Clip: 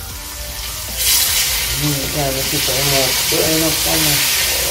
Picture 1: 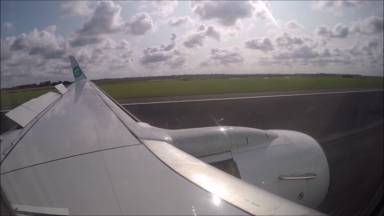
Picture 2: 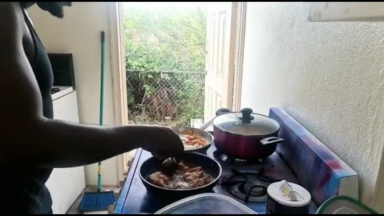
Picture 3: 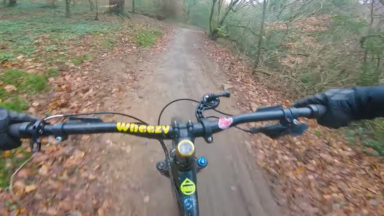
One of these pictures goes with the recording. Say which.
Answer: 2